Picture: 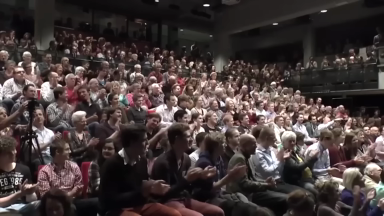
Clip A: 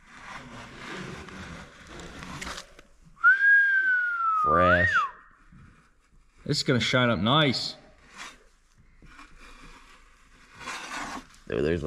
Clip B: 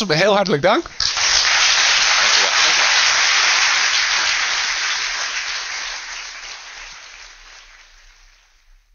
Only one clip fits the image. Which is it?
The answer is B